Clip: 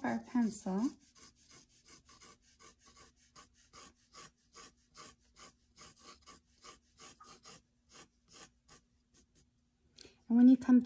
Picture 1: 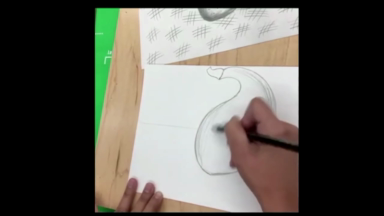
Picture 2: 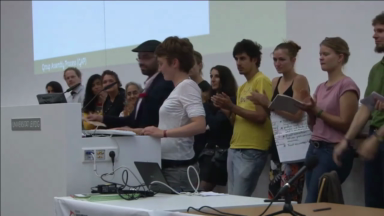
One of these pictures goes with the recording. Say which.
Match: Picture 1